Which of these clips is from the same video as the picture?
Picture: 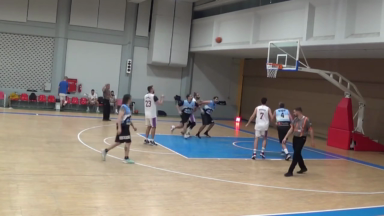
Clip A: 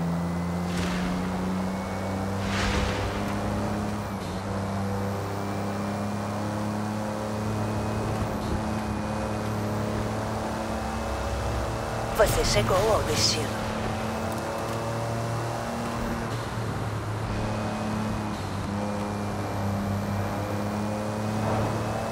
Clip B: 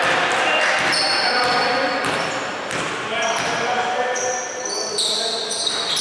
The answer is B